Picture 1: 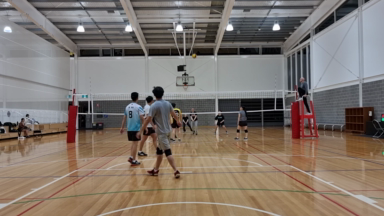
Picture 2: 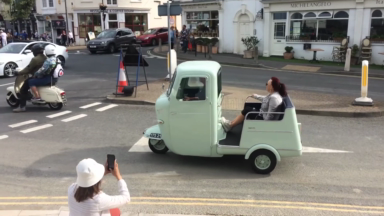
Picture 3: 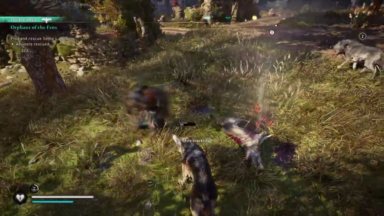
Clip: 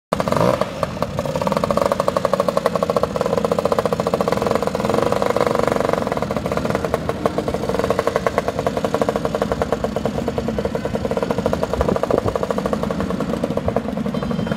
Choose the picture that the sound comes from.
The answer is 2